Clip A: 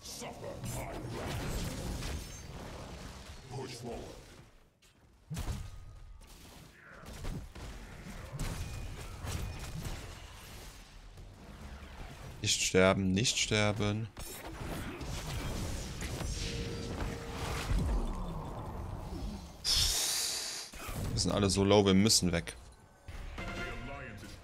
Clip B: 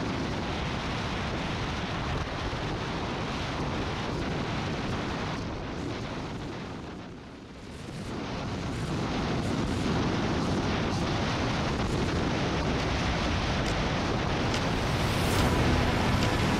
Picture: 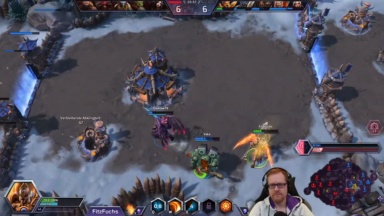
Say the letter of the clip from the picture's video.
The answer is A